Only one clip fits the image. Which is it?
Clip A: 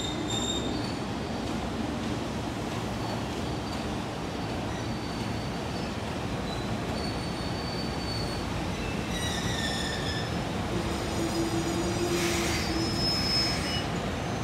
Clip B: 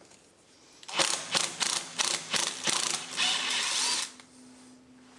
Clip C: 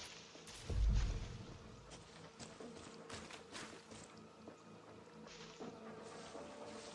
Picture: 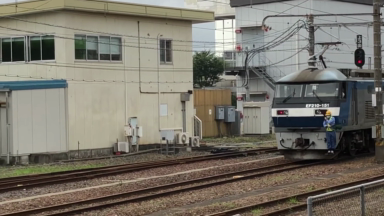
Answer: A